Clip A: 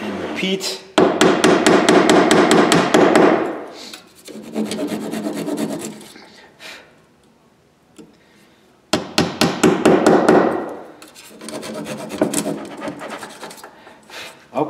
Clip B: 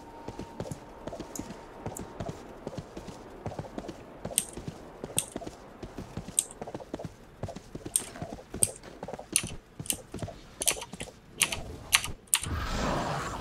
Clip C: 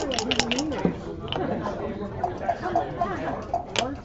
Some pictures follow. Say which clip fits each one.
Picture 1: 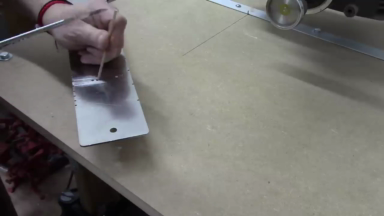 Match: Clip A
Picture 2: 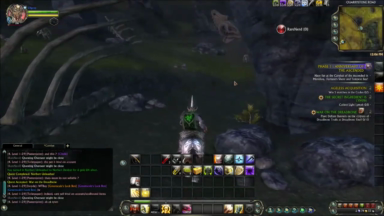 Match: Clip B